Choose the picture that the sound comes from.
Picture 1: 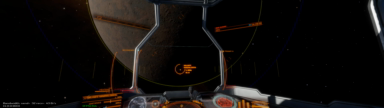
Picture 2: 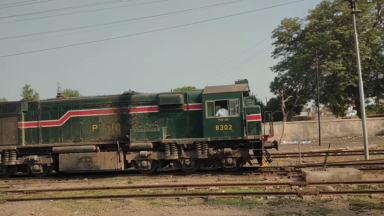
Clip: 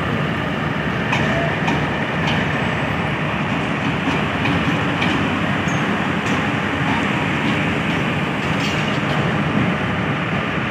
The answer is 2